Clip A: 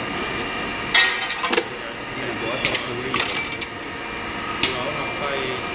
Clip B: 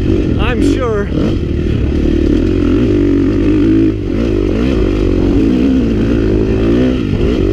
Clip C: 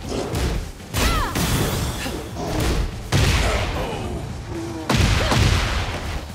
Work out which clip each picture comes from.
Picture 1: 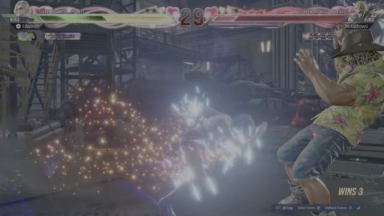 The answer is C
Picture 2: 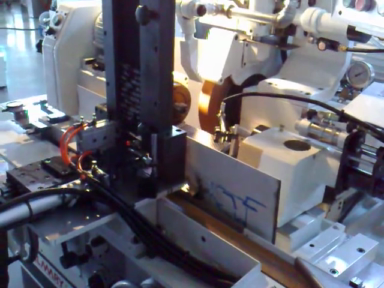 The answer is A